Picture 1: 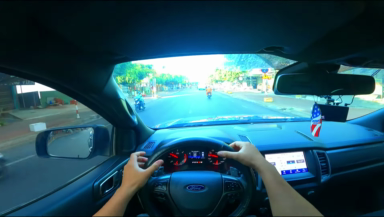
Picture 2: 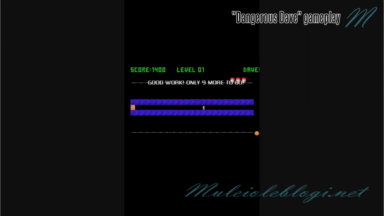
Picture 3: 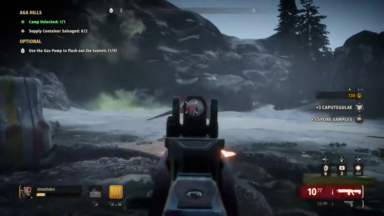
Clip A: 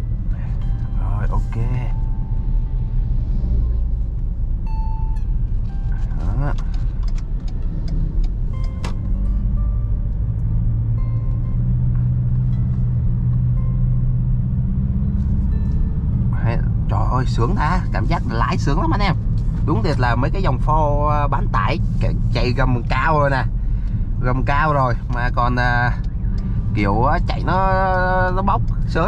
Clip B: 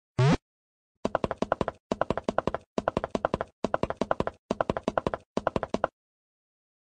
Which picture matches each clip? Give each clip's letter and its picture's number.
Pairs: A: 1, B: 2